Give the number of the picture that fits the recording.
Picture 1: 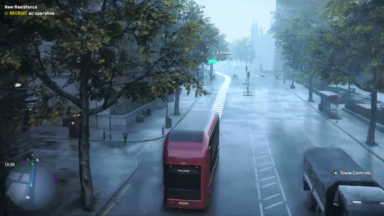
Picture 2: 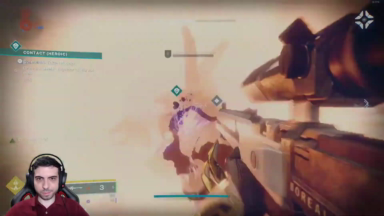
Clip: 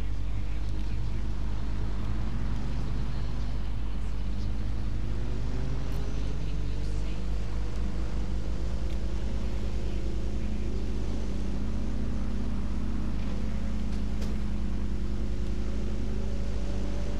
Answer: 1